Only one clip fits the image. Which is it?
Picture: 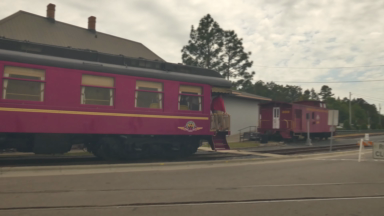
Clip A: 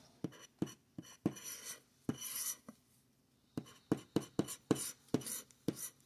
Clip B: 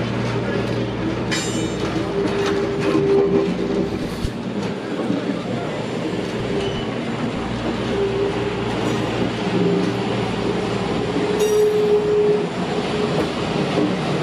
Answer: B